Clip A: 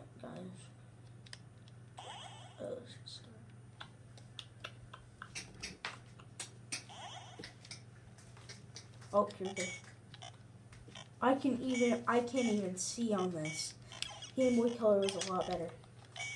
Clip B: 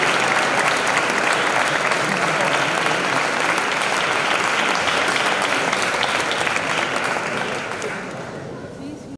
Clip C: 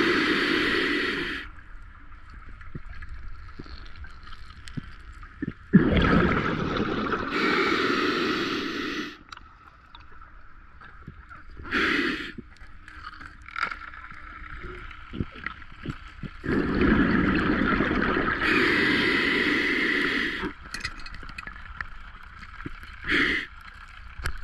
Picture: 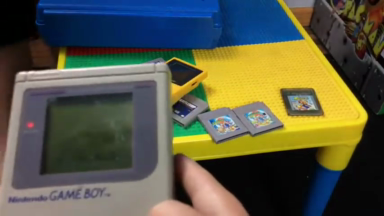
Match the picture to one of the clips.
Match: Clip A